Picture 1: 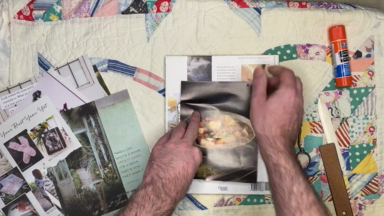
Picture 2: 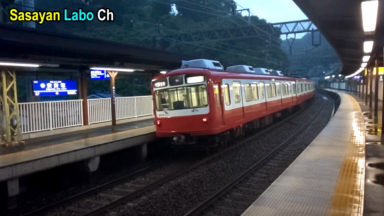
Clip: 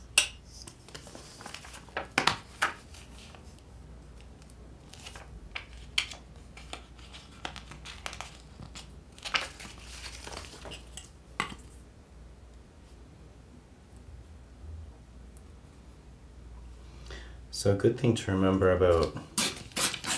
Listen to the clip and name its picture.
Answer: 1